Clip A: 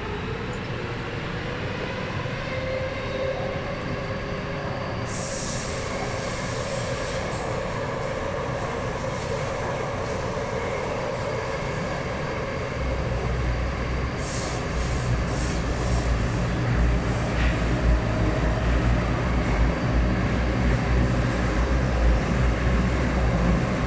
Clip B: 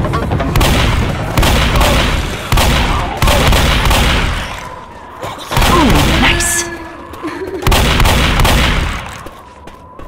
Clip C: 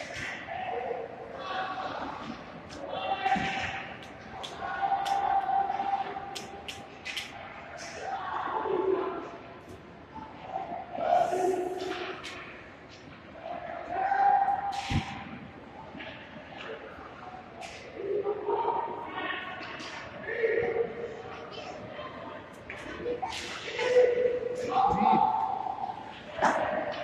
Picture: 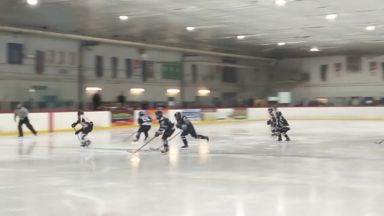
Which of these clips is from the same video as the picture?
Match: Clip C